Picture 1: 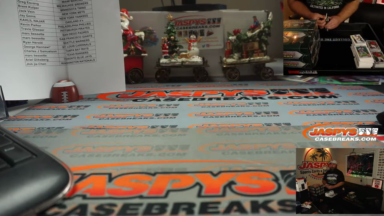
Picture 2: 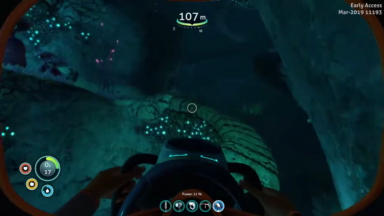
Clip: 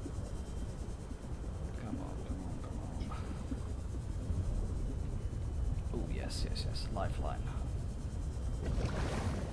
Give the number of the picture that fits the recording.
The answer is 2